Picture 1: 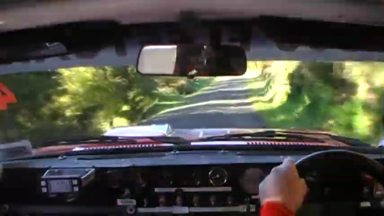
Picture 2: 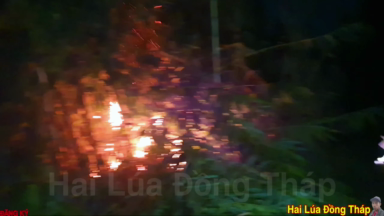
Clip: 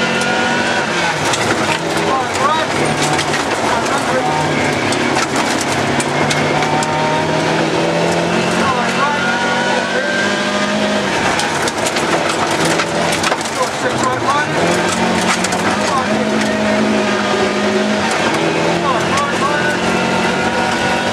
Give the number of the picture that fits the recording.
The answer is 1